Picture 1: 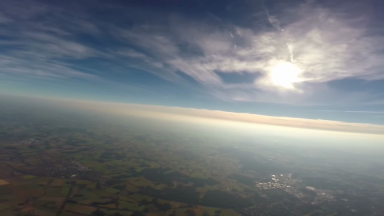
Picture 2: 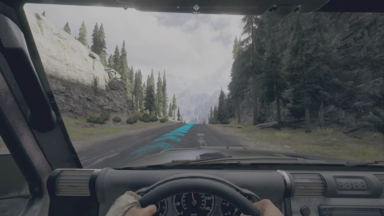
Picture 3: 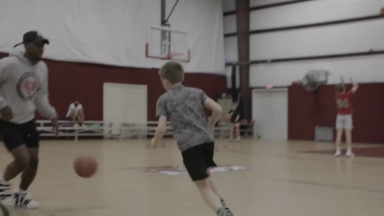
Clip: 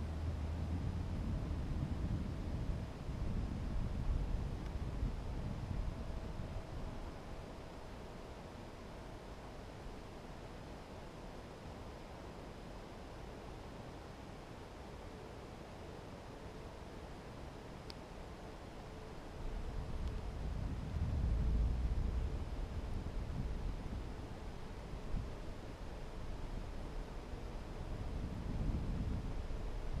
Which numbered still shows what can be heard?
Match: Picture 1